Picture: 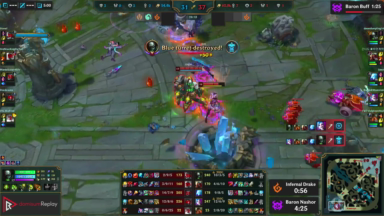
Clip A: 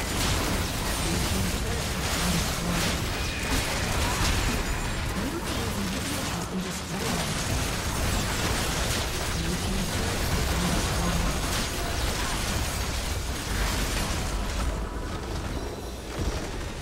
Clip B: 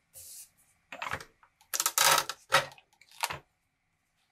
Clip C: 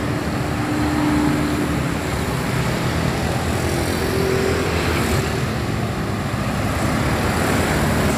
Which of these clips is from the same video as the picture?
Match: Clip A